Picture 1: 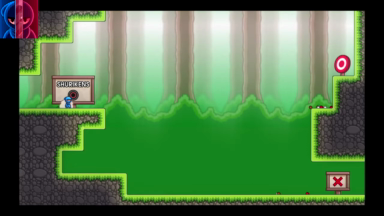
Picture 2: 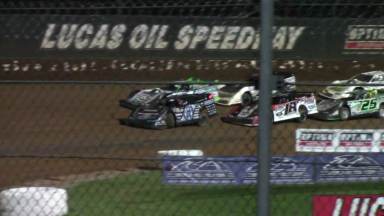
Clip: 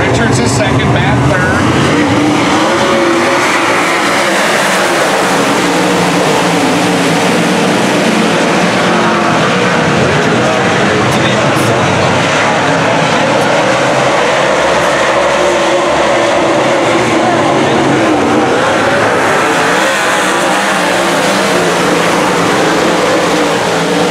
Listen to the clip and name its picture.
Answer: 2